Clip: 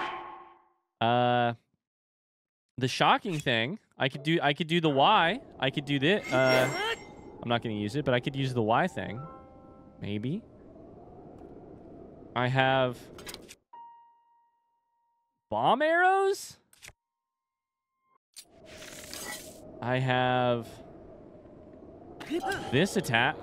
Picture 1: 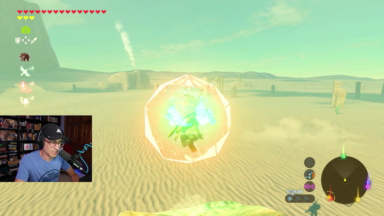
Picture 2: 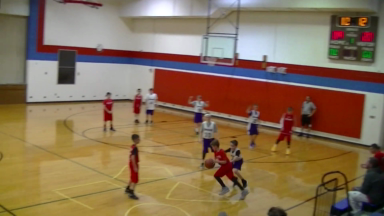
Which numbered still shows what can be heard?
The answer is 1